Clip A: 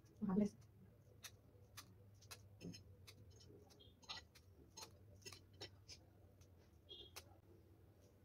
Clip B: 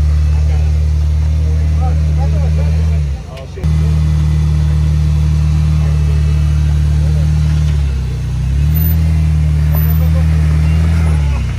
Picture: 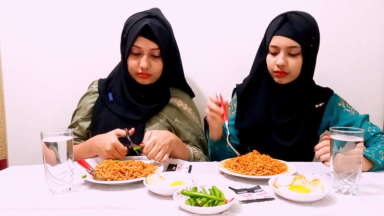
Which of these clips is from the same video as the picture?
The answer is A